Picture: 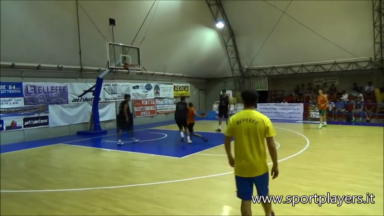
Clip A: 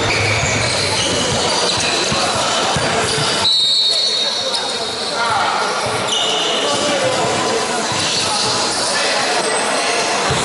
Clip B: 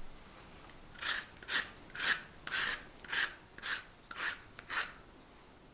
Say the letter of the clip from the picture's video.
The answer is A